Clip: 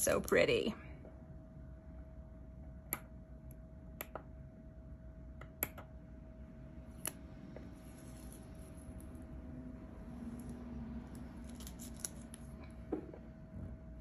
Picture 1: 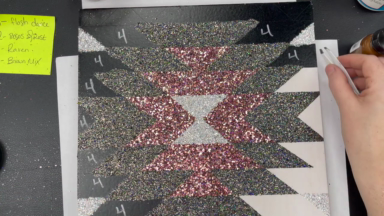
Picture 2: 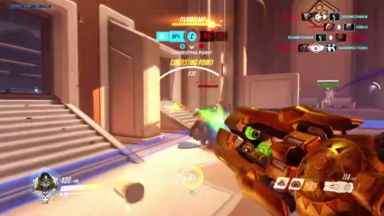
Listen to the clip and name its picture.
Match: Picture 1